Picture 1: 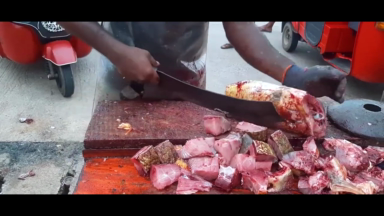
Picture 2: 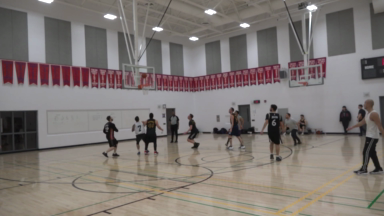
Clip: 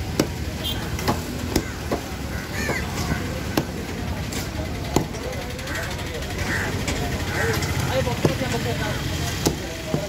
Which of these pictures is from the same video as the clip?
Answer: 1